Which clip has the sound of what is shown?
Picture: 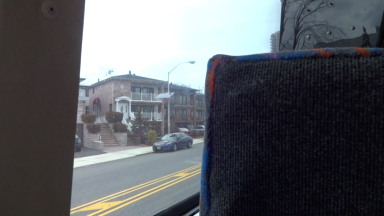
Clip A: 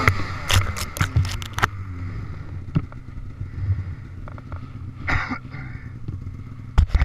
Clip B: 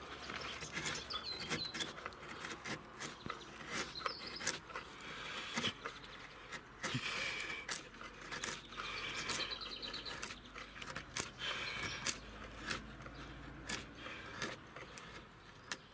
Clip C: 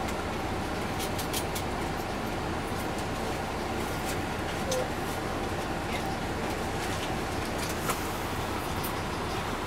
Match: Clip C